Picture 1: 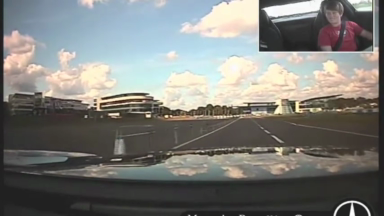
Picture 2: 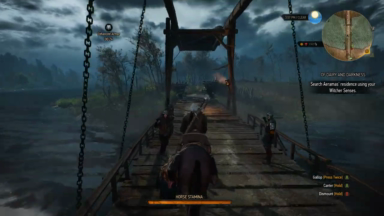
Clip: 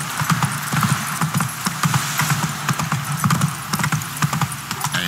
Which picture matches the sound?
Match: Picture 2